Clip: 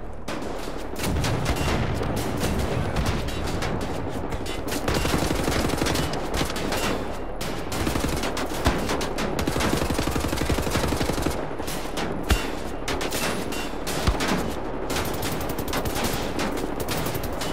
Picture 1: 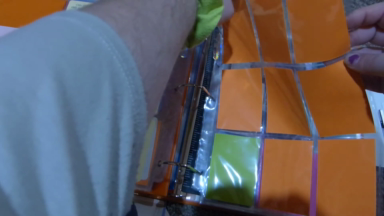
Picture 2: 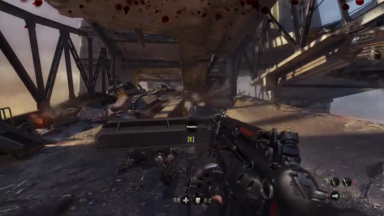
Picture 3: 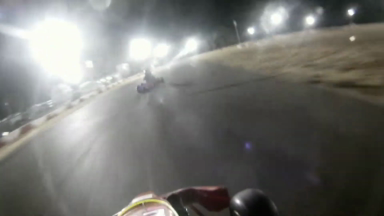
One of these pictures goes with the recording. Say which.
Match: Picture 2